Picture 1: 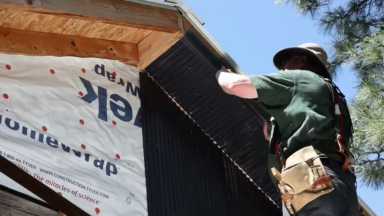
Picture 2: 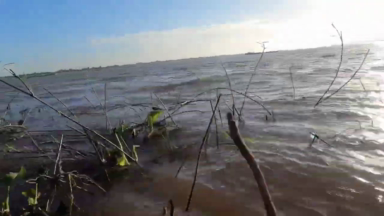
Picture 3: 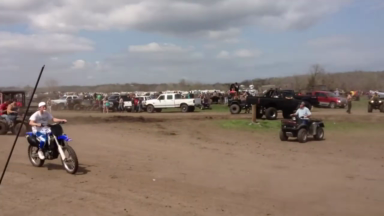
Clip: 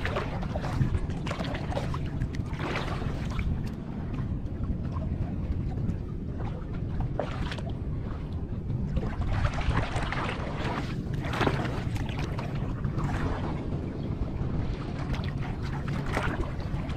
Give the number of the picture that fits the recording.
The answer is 2